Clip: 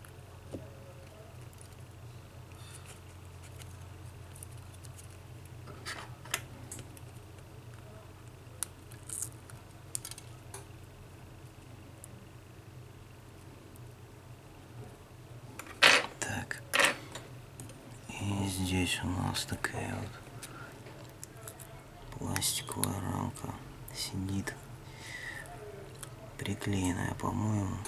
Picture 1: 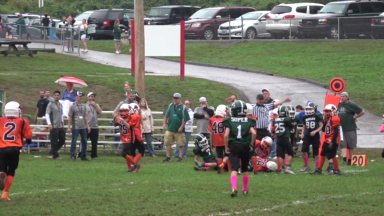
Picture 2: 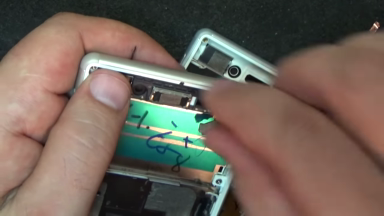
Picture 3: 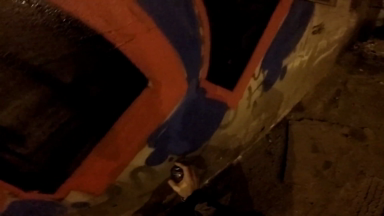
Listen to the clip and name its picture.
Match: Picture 2